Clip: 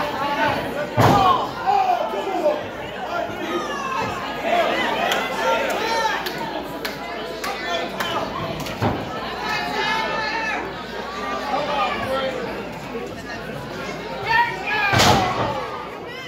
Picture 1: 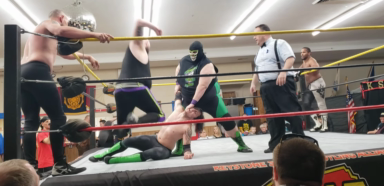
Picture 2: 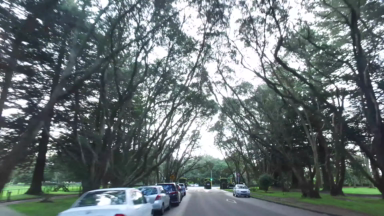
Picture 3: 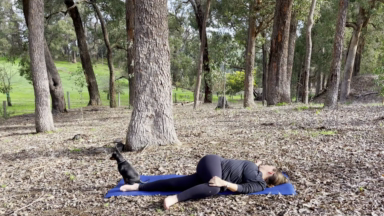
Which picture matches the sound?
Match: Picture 1